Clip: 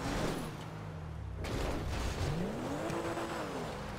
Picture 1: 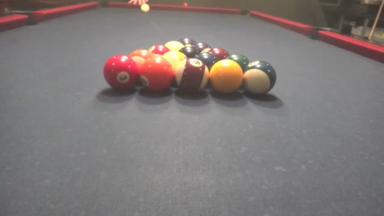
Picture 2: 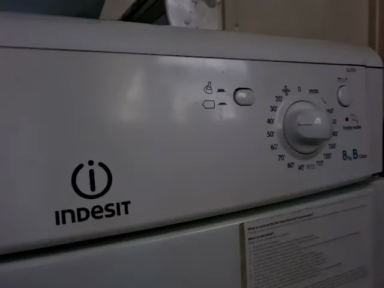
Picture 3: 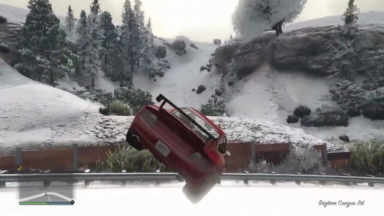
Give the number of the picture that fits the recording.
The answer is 3